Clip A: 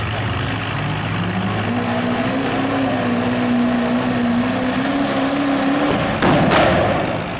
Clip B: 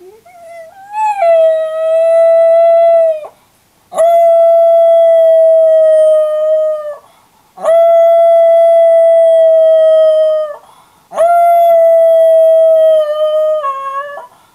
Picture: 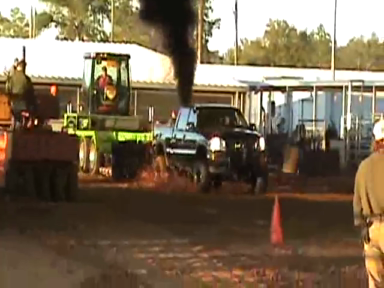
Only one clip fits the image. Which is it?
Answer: A